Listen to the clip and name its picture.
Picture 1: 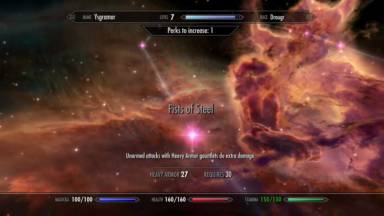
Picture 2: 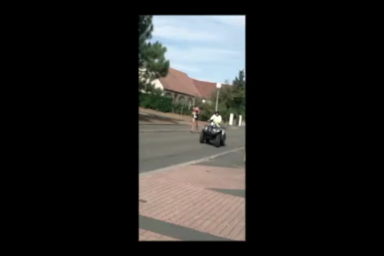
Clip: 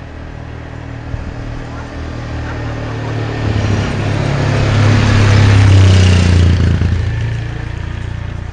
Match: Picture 2